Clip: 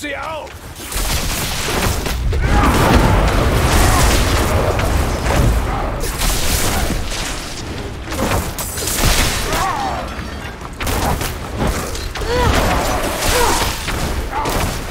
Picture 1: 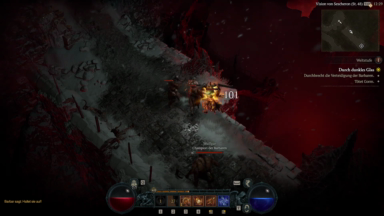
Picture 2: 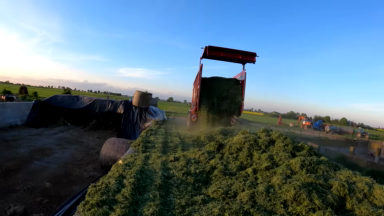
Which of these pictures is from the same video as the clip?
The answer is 1